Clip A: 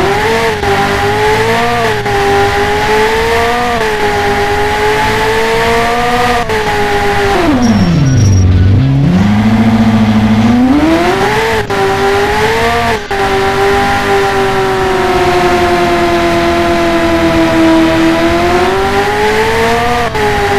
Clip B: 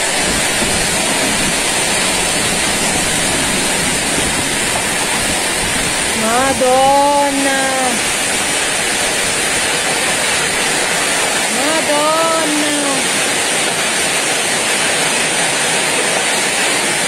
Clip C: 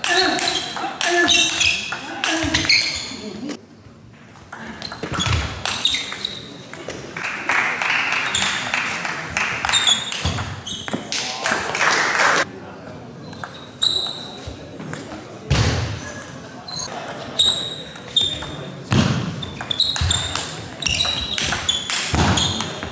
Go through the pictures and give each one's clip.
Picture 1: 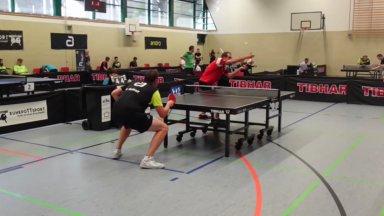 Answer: C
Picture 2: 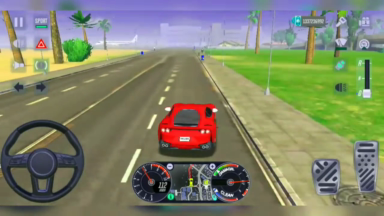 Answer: A